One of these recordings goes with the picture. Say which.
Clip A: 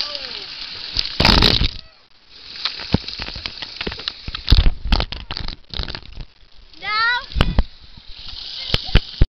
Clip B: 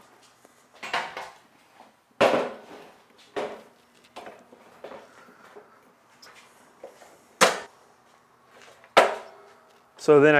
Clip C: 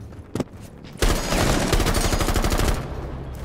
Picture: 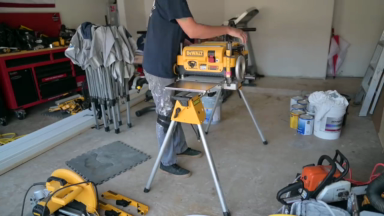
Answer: B